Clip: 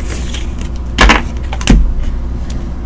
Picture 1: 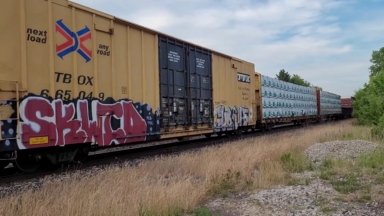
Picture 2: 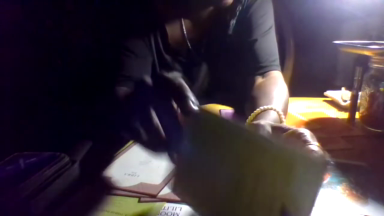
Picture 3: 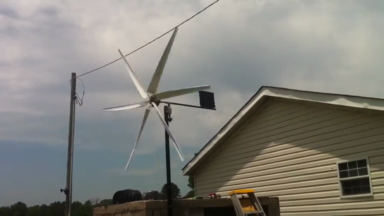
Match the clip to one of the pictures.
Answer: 2